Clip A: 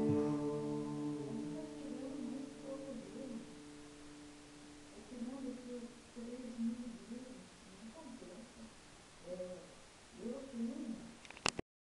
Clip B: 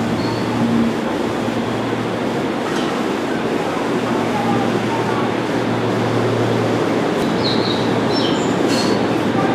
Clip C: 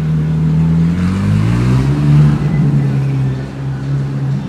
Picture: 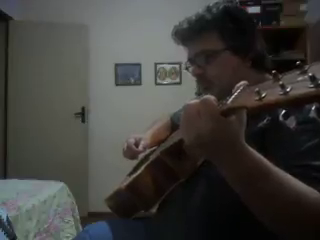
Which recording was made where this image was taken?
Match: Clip A